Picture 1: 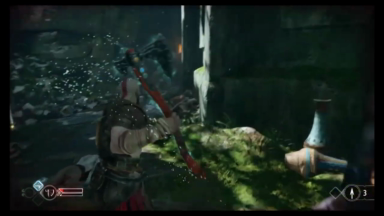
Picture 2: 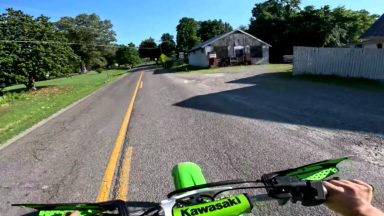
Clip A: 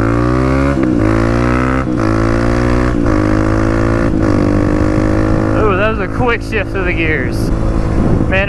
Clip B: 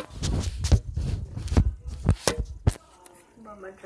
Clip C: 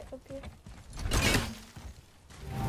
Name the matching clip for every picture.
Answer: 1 C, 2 A